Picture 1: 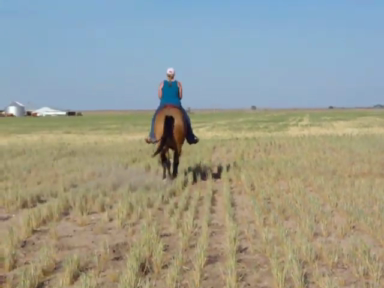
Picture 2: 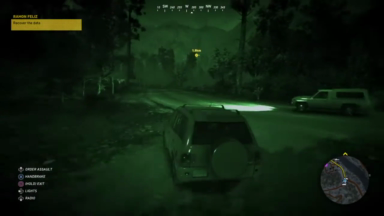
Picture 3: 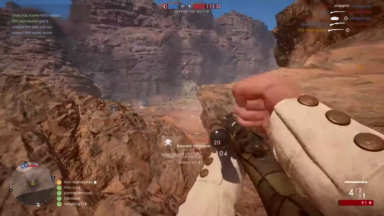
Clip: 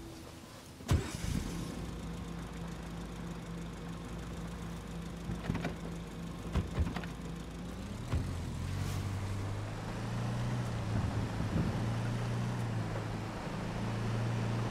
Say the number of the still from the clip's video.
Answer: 2